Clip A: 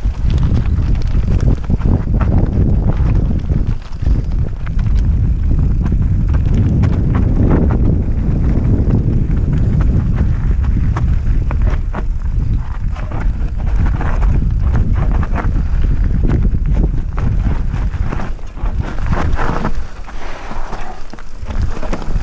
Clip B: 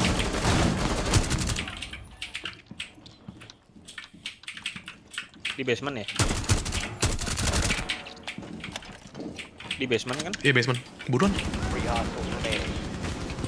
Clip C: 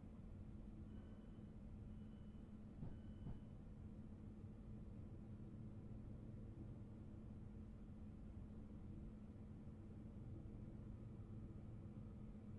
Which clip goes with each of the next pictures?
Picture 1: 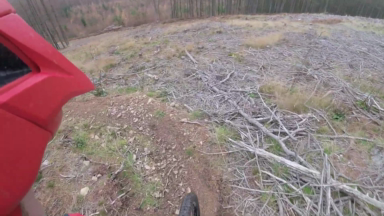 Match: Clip A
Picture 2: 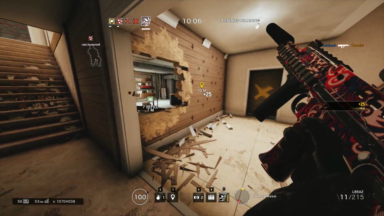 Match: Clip B